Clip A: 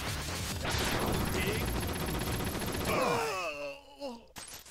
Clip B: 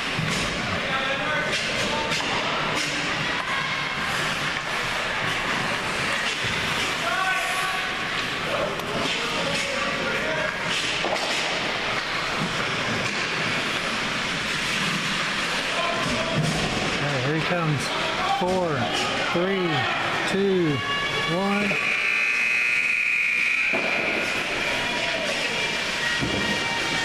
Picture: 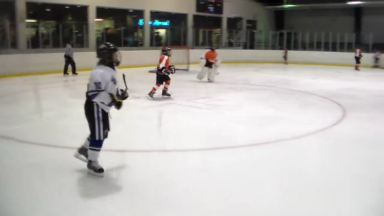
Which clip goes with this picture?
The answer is B